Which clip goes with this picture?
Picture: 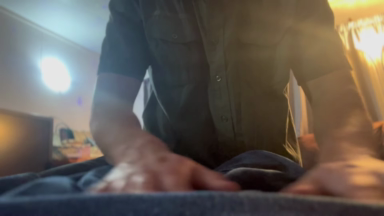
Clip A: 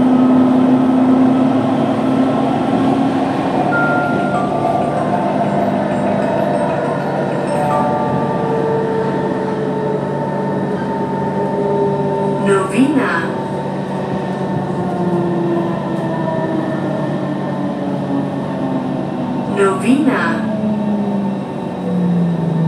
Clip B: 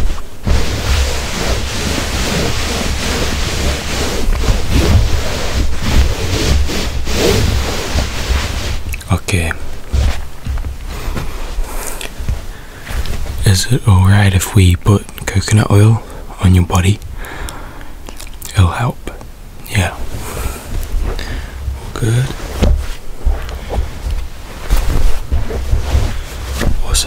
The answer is B